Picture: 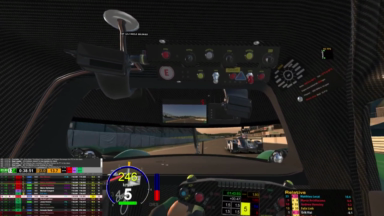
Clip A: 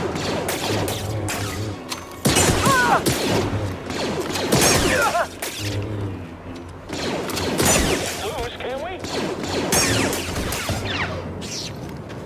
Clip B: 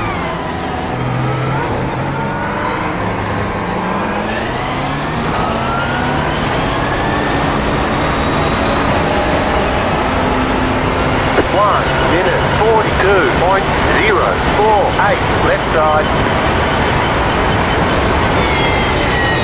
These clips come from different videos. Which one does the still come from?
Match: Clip B